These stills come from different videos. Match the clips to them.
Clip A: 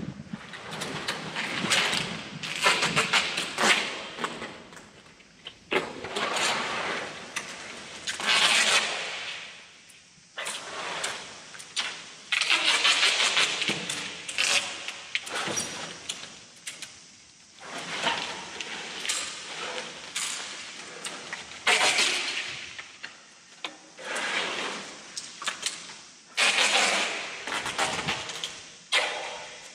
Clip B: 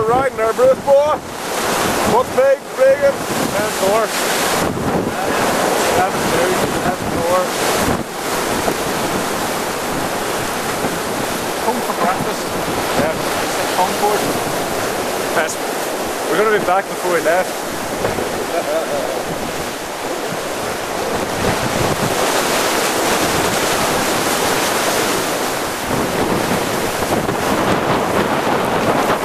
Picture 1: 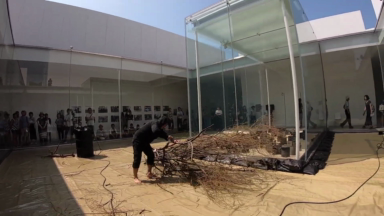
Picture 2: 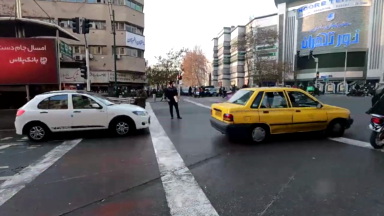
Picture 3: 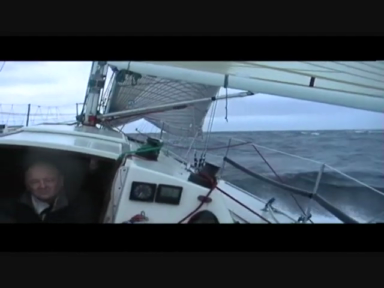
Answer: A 1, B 3